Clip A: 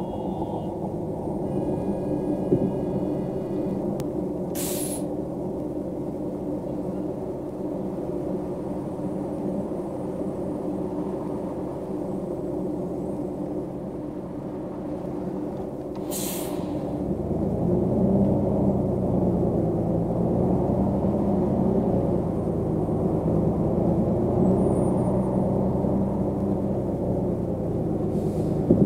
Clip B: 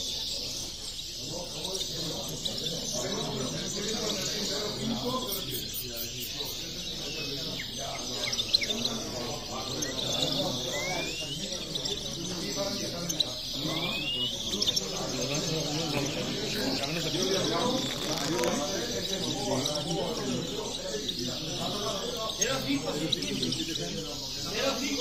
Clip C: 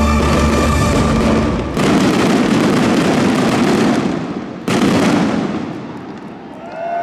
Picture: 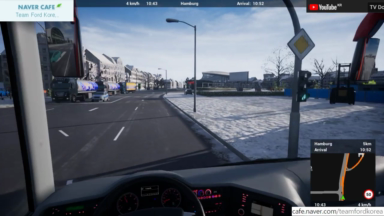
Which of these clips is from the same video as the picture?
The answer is A